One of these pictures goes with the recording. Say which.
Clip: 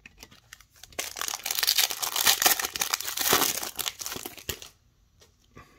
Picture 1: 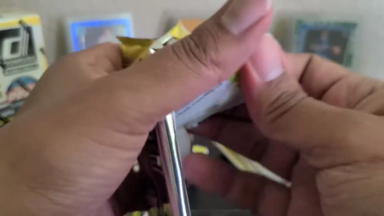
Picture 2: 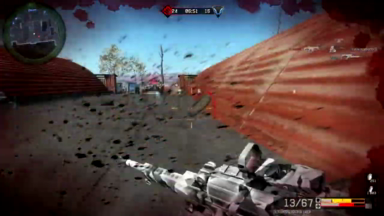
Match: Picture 1